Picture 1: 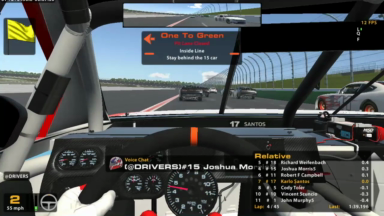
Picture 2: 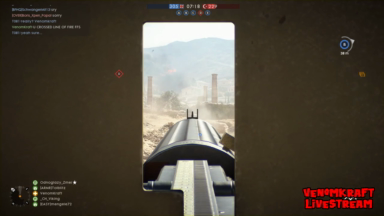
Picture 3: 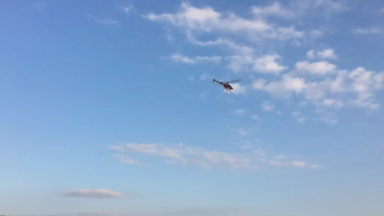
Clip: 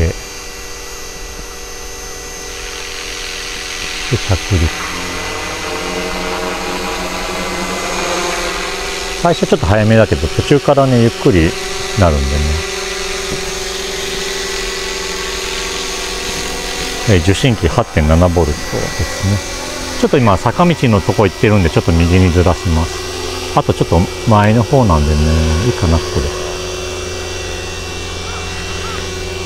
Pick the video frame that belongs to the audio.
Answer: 3